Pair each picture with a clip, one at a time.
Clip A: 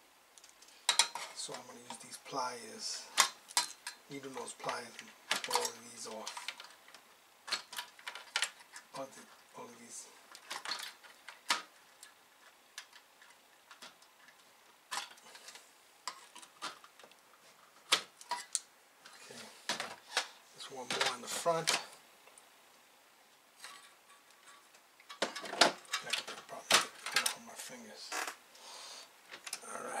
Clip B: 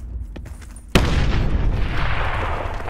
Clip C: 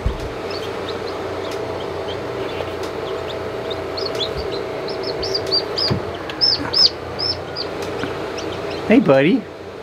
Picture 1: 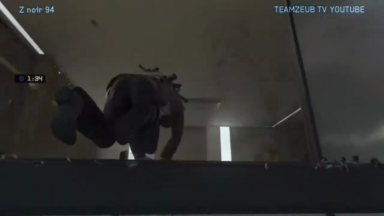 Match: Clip B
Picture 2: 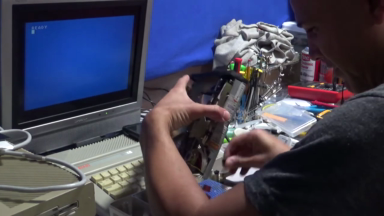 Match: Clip A